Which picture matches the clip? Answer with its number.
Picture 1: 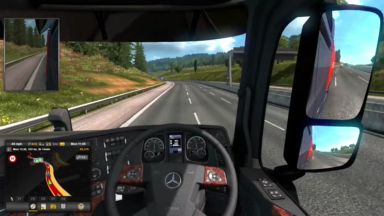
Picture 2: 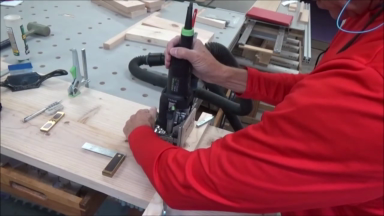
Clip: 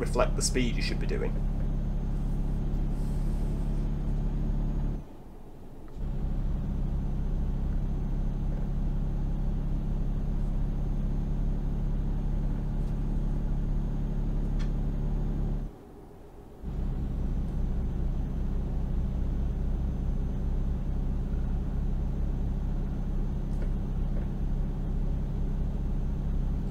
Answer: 1